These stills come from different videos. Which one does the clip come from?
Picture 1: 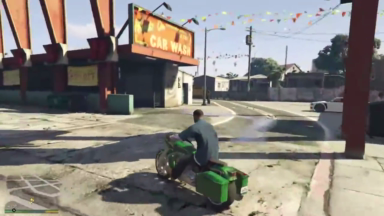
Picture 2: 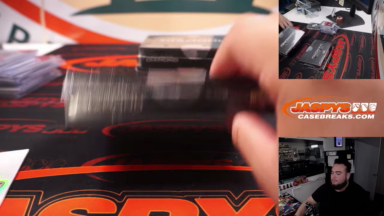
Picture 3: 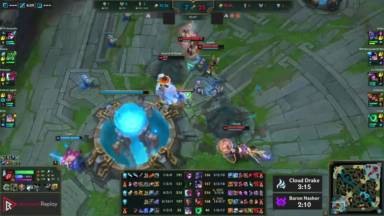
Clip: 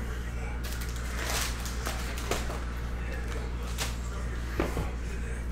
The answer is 2